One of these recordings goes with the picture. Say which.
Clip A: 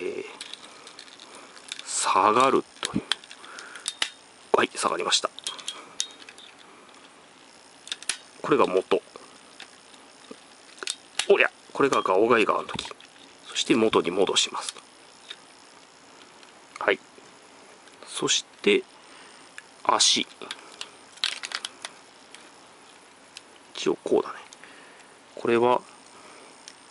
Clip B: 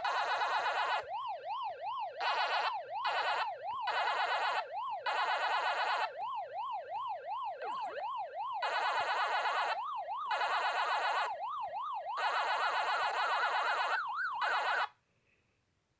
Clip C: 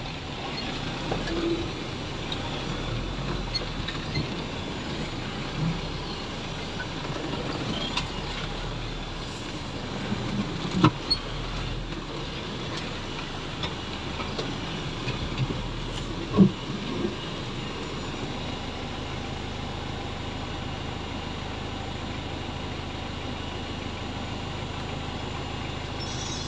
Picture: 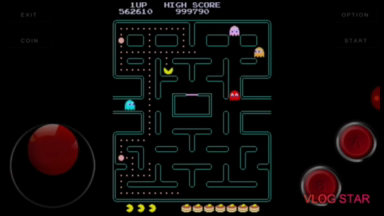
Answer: B